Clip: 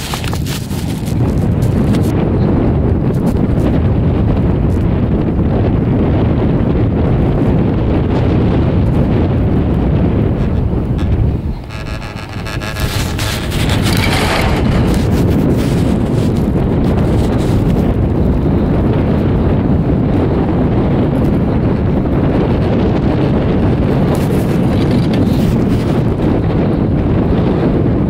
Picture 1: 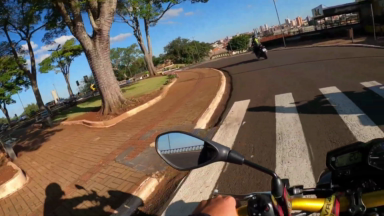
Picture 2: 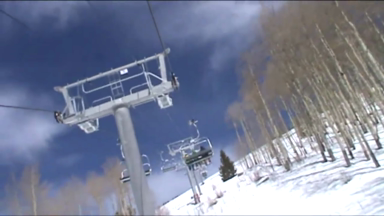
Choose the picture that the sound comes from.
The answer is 2